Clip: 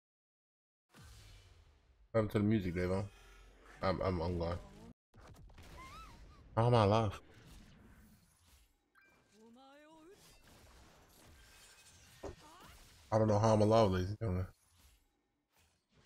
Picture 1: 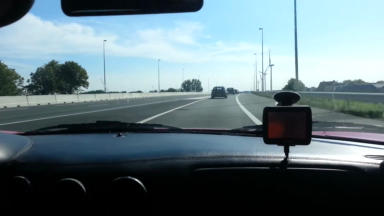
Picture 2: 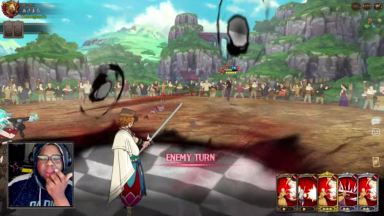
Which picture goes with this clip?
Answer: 2